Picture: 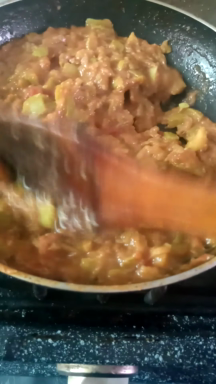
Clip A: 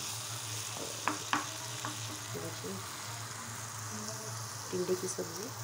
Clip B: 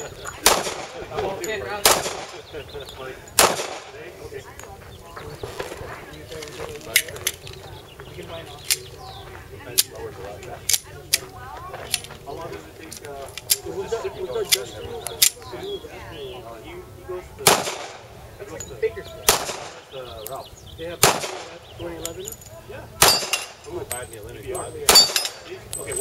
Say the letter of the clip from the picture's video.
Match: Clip A